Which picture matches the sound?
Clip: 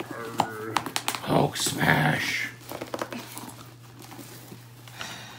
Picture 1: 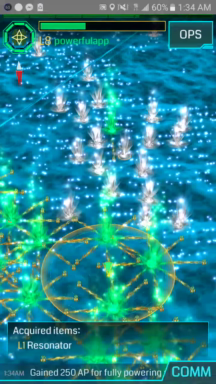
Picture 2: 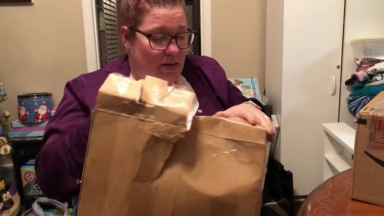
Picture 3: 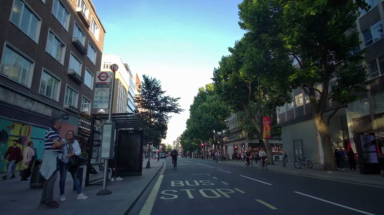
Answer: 2